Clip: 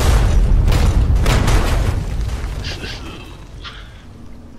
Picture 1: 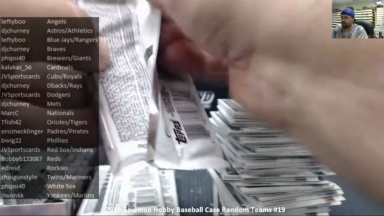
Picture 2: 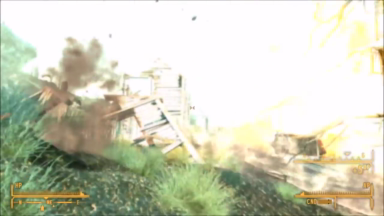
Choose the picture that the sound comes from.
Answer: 2